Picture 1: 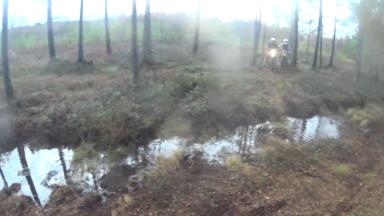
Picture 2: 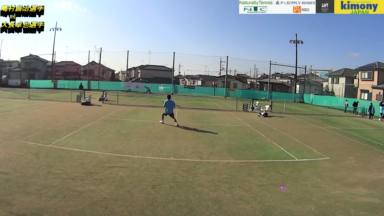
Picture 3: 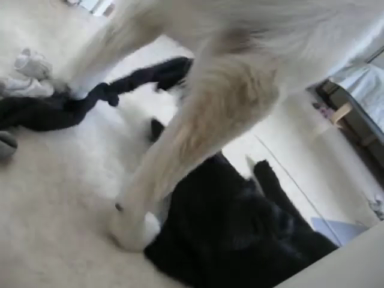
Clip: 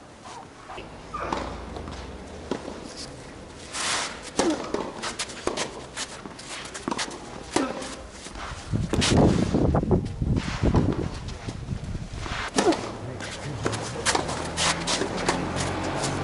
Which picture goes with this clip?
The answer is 2